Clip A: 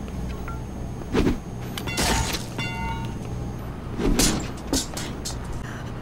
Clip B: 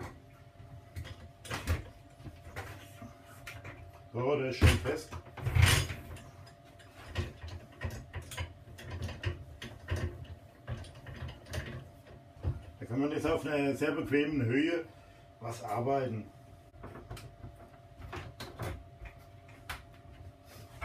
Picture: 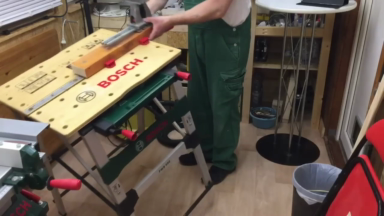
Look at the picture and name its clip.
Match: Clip B